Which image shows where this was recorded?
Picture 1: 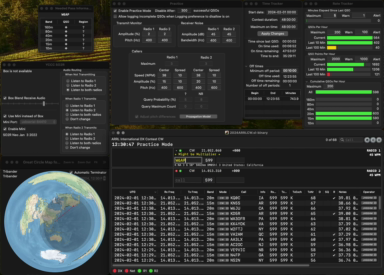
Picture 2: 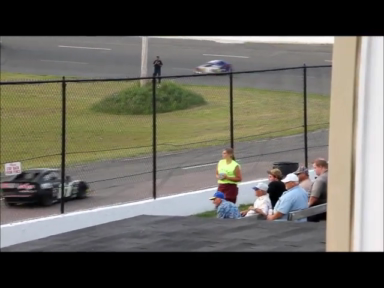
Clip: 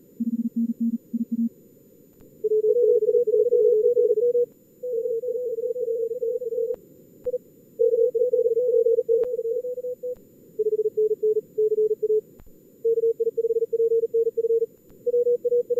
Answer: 1